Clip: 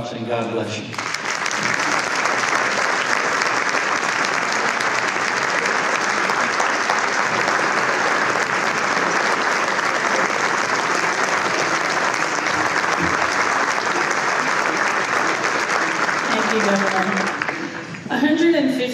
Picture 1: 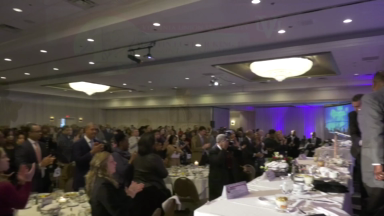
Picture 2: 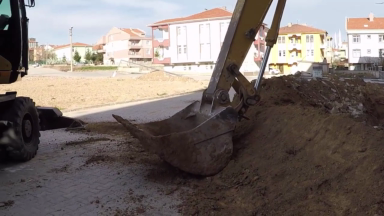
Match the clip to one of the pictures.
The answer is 1